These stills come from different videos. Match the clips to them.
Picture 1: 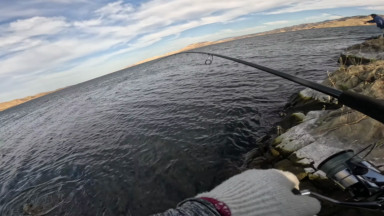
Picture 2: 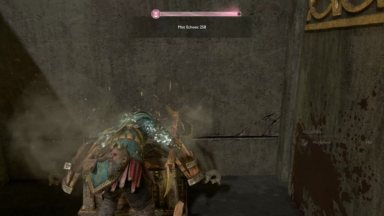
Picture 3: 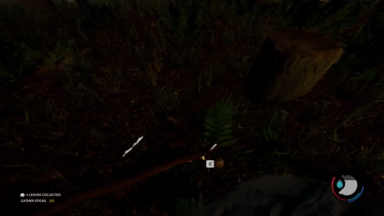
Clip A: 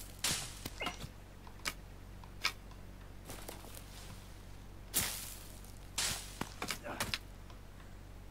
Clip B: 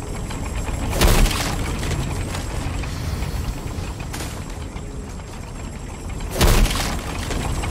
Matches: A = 3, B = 2